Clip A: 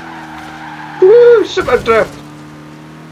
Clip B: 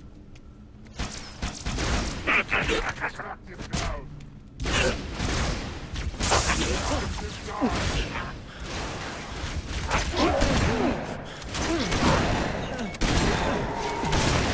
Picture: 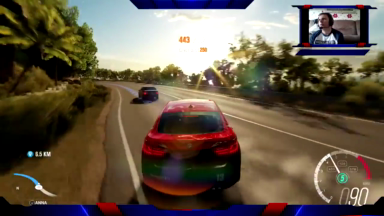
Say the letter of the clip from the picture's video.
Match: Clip A